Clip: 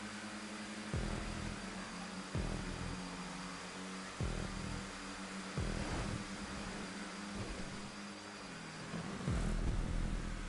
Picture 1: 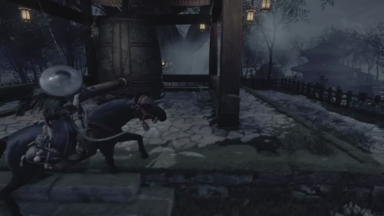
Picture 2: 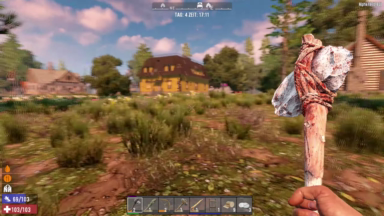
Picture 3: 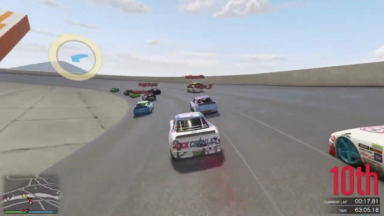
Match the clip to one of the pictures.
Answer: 3